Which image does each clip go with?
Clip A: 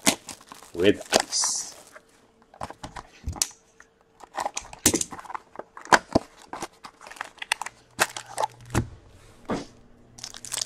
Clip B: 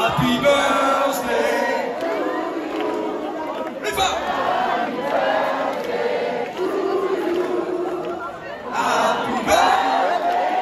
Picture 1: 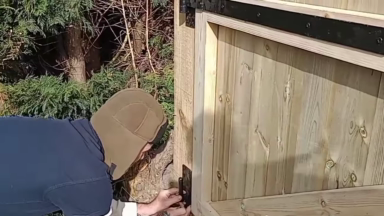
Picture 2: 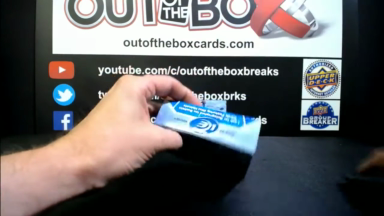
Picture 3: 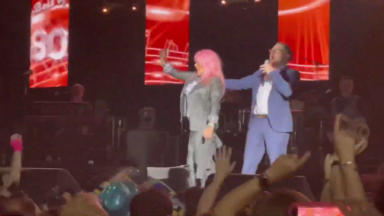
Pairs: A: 2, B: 3